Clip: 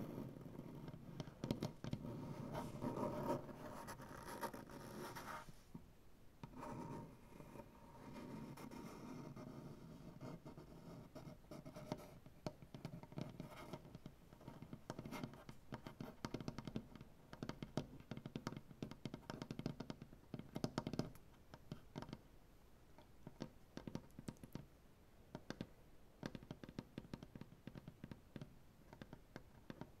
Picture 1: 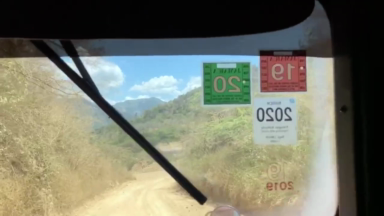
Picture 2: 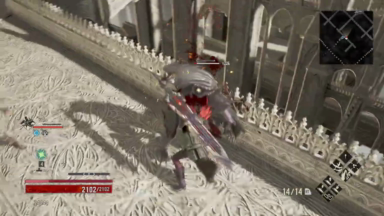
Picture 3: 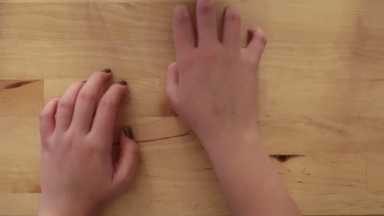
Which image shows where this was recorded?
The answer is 3